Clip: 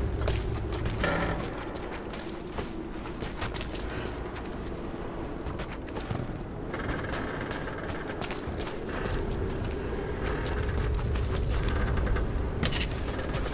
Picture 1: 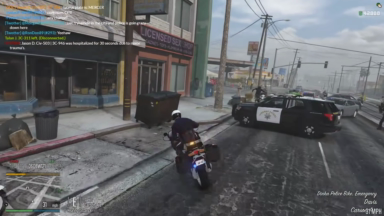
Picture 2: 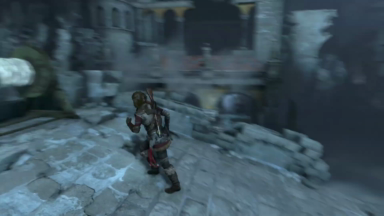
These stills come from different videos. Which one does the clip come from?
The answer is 2